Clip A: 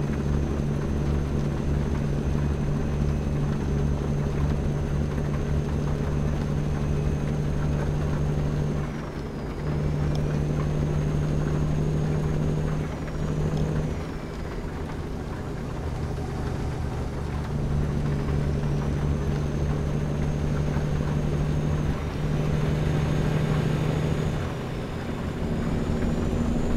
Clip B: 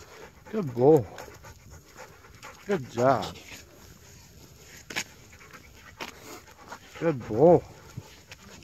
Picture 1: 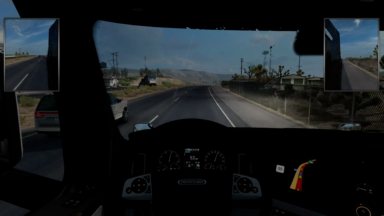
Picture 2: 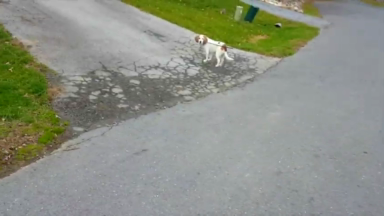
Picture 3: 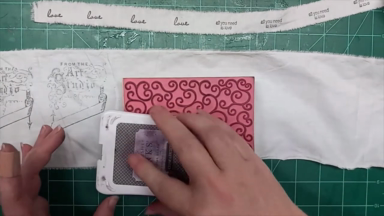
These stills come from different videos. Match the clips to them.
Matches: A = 1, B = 2